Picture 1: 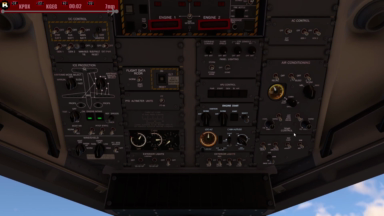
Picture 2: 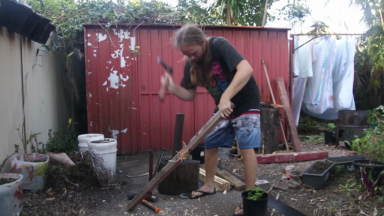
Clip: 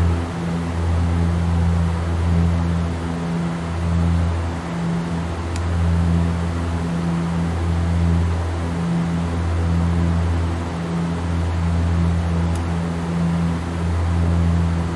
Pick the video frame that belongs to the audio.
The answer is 1